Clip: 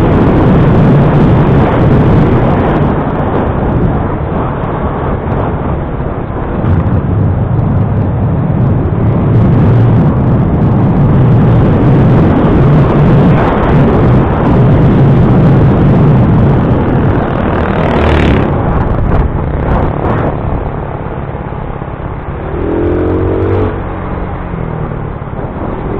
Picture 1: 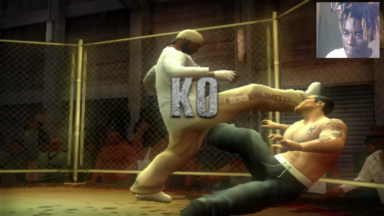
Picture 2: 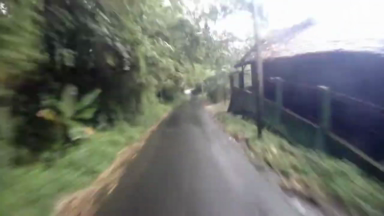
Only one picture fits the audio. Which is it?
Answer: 2